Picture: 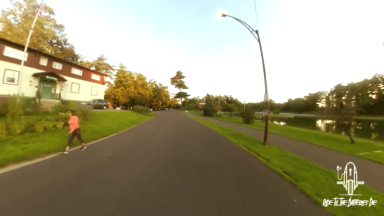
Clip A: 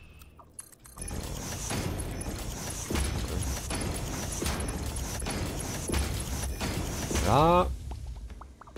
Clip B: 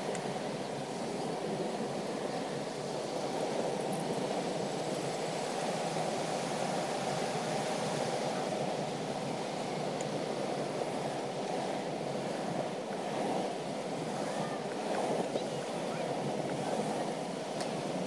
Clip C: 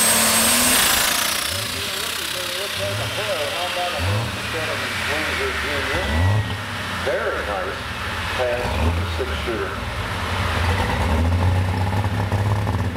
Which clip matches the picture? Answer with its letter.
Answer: B